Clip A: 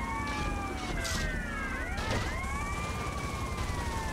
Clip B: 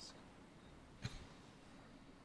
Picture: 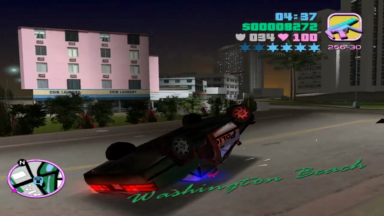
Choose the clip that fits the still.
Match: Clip A